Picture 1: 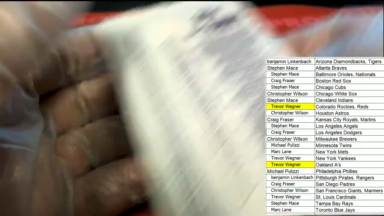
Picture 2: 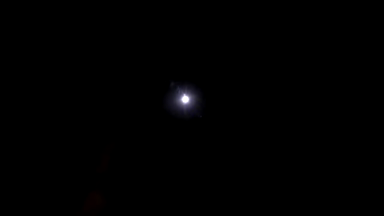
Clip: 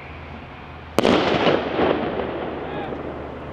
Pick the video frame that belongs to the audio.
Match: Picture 2